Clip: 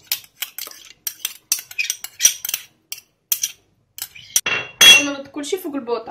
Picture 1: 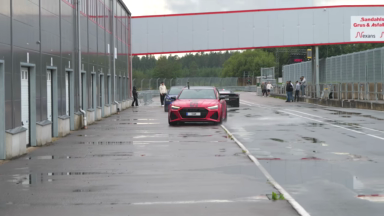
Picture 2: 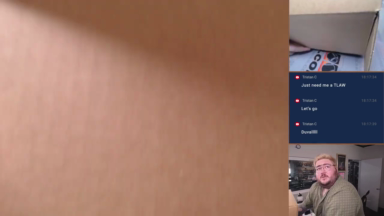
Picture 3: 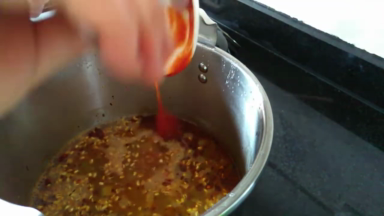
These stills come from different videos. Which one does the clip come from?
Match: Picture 3